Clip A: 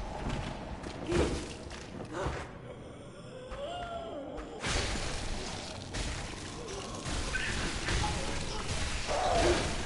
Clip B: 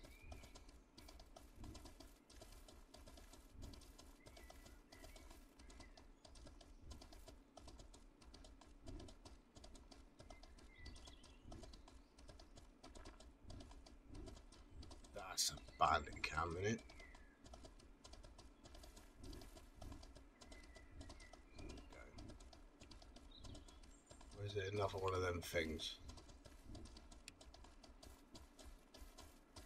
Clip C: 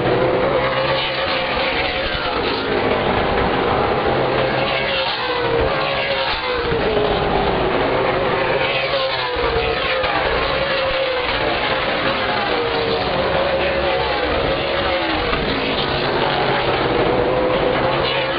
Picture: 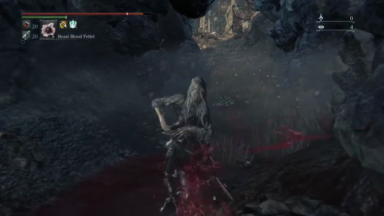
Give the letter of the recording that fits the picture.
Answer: A